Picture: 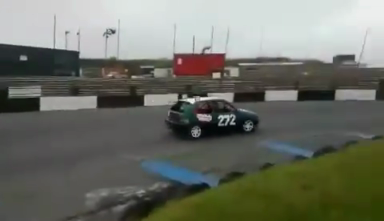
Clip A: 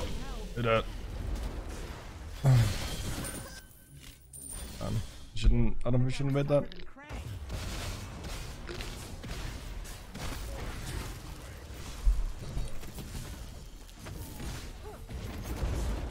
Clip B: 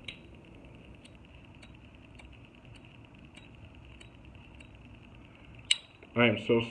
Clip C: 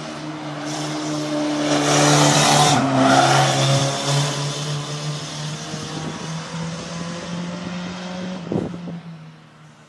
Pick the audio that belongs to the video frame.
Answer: C